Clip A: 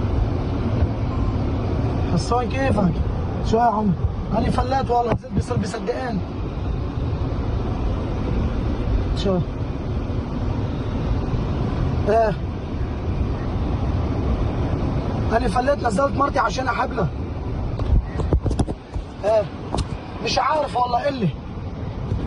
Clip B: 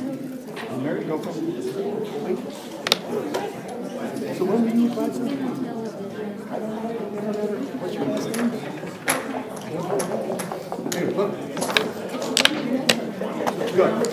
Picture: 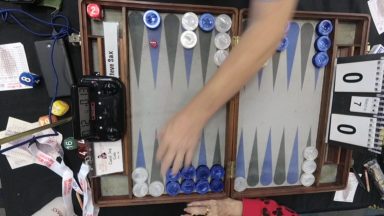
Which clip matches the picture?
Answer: B